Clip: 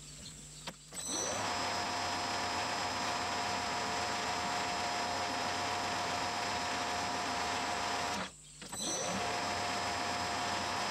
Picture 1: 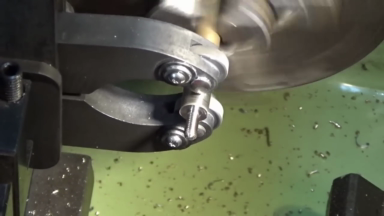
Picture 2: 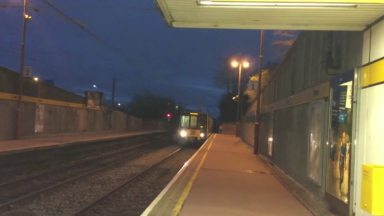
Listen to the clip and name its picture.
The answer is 1